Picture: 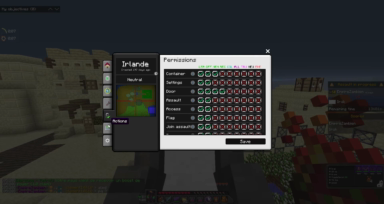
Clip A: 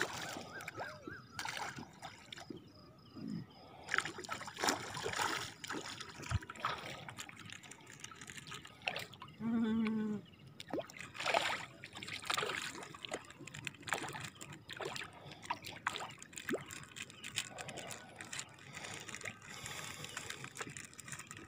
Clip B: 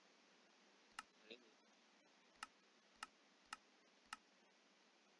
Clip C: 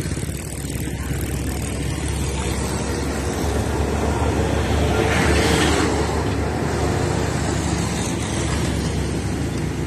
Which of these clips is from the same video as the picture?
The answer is B